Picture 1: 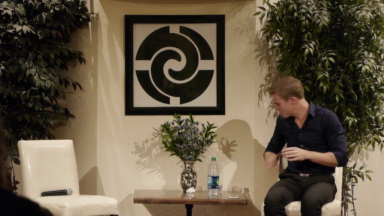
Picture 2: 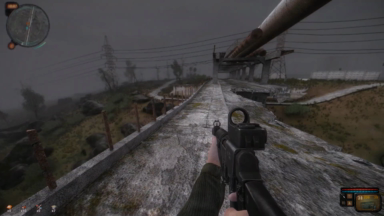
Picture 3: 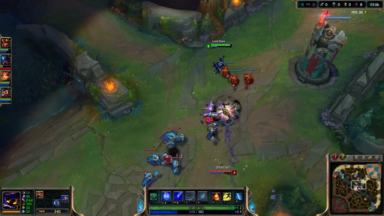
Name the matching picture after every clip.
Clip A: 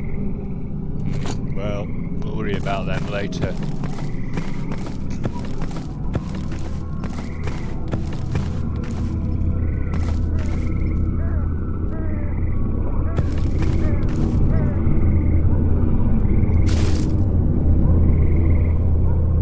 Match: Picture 2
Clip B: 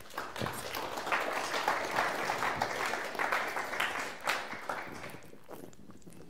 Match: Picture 1